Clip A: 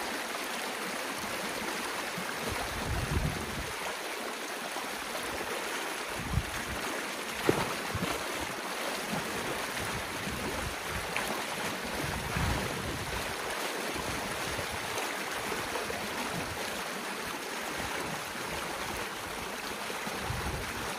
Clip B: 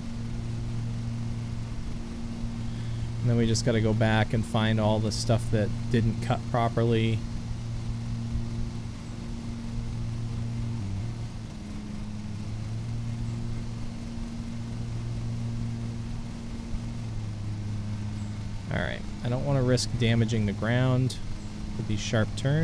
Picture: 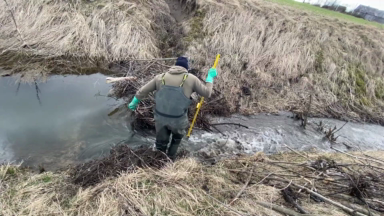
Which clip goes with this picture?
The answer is A